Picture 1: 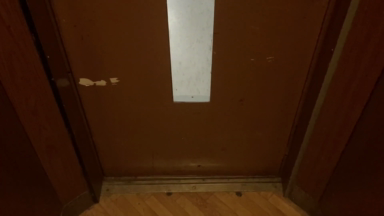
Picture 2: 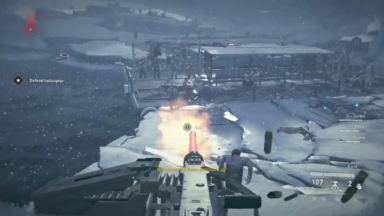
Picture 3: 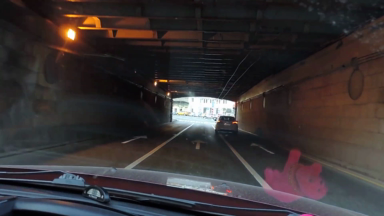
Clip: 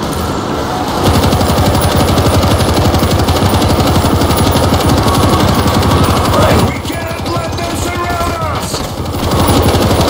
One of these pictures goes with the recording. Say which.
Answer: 2